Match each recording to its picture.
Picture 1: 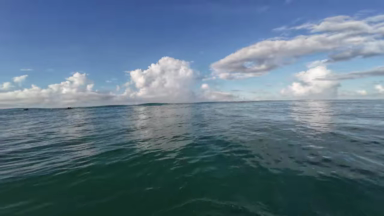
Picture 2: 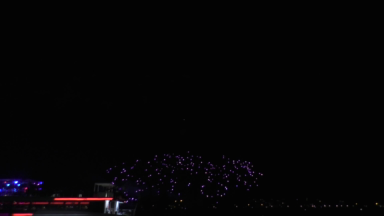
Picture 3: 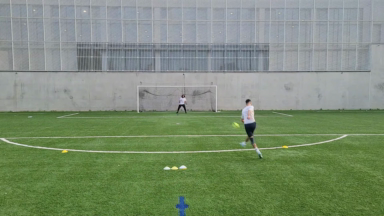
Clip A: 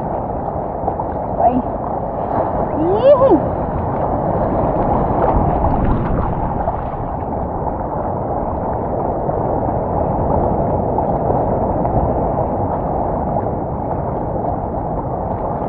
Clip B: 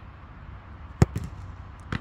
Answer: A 1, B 3